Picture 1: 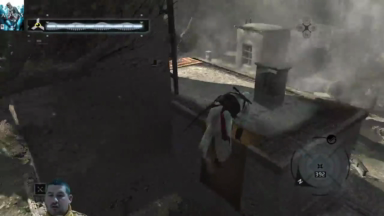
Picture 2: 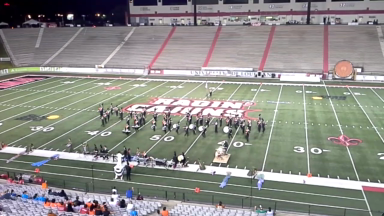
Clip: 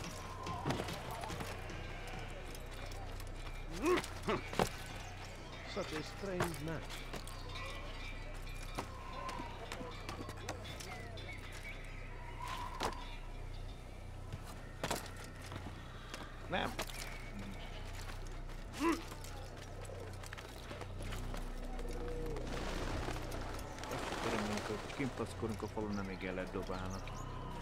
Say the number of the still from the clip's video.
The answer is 1